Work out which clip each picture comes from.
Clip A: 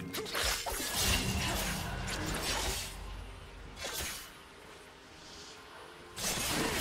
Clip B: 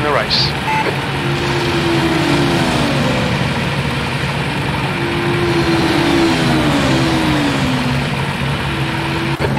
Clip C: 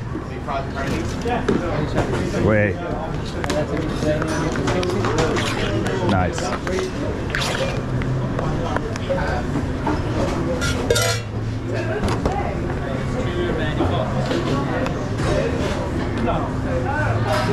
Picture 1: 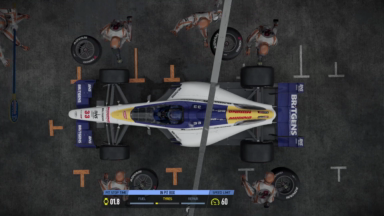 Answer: B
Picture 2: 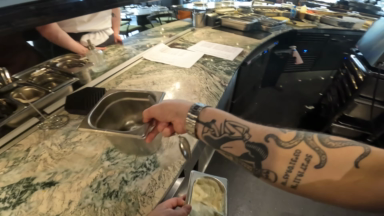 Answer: C